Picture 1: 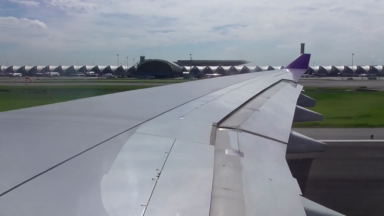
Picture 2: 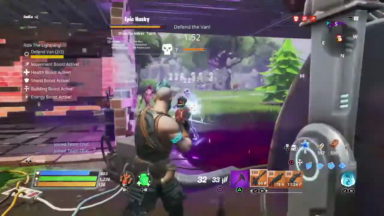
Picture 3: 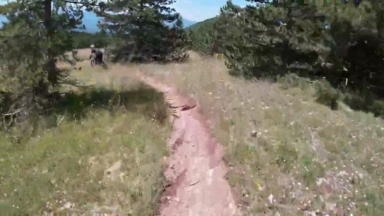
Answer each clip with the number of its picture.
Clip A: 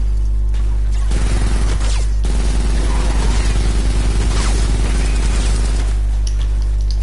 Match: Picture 2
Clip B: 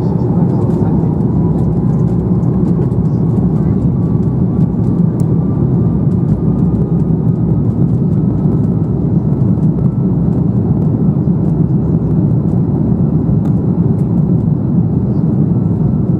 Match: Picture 1